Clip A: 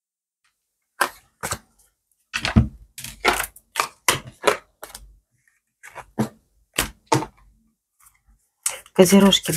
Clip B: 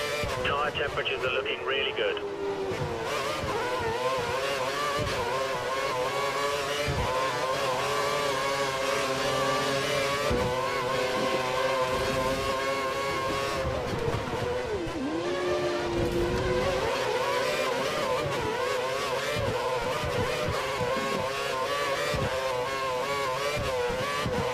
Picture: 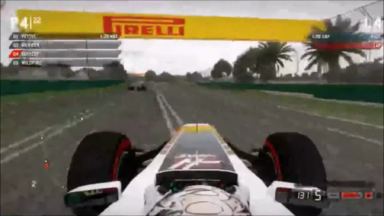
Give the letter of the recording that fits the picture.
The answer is B